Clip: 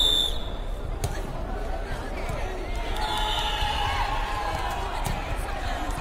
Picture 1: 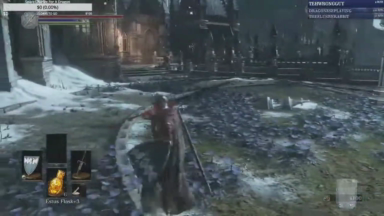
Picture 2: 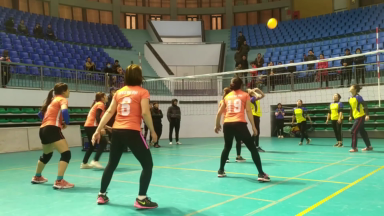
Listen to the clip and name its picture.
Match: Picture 2